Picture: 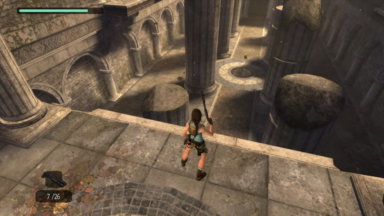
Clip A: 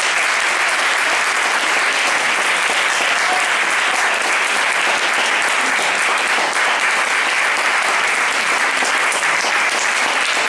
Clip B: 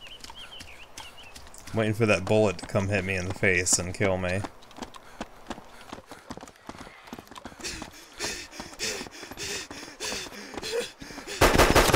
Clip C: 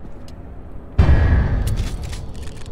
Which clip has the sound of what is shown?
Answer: C